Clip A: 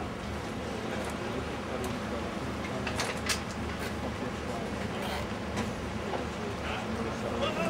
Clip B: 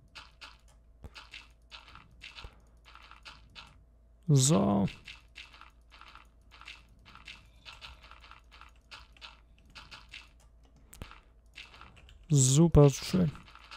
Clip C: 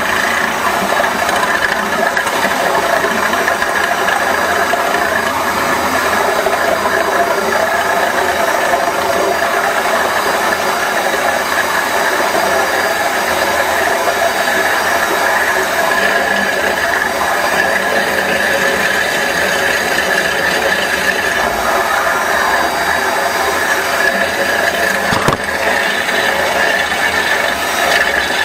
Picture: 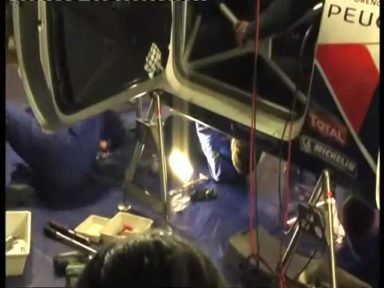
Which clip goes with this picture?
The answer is A